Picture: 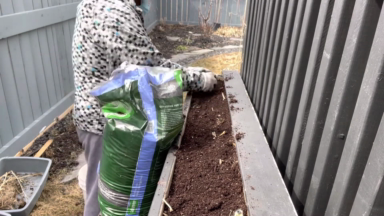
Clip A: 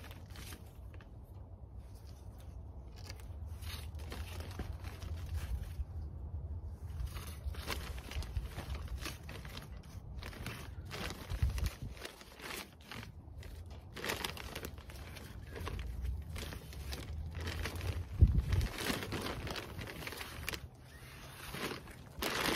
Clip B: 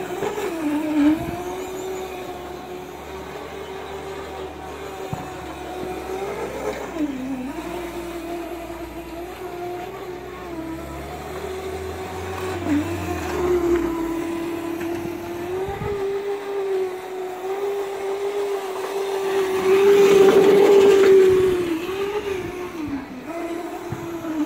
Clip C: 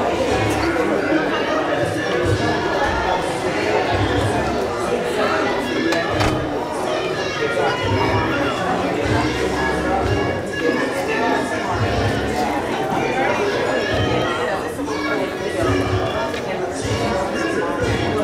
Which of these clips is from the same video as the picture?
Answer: A